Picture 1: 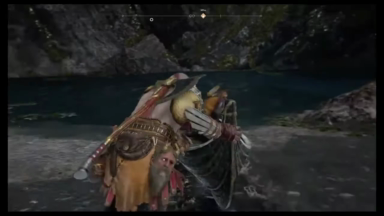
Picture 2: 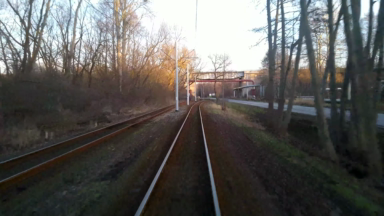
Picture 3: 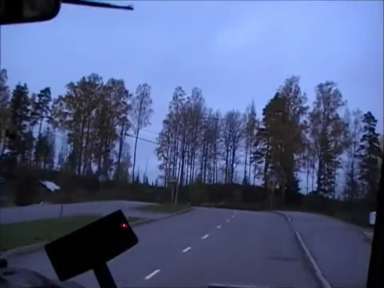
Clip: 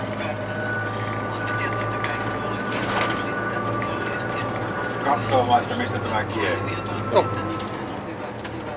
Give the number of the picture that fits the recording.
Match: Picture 3